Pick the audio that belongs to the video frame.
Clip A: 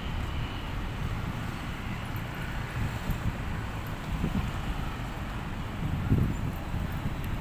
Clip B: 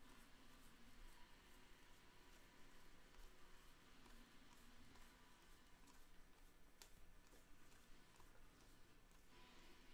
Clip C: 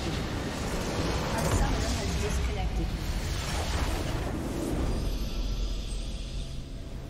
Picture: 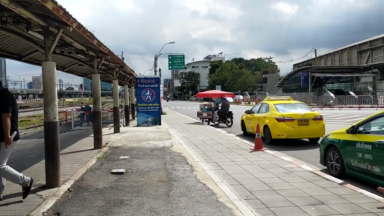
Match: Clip A